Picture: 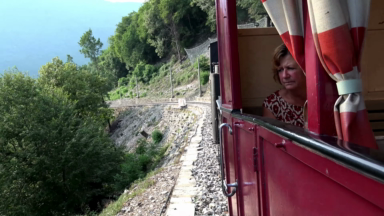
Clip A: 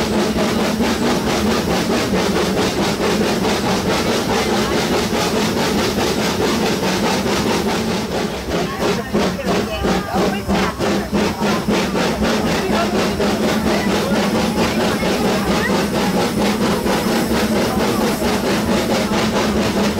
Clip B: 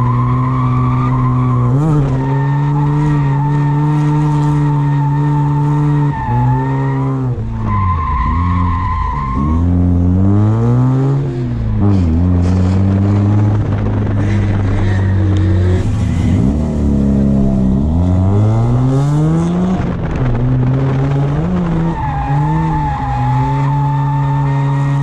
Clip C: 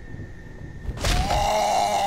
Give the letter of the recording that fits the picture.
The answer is A